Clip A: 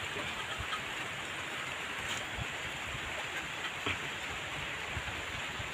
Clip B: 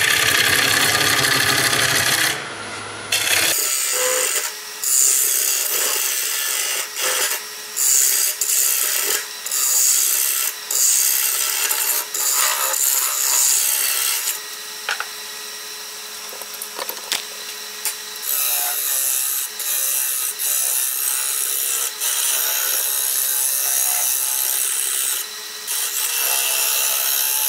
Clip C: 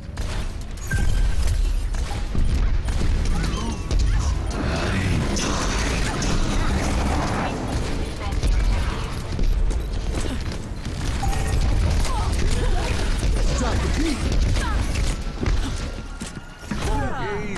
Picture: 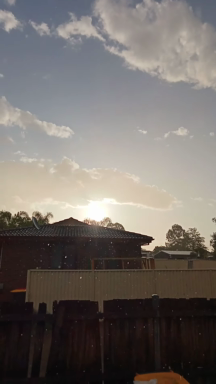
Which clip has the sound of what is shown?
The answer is A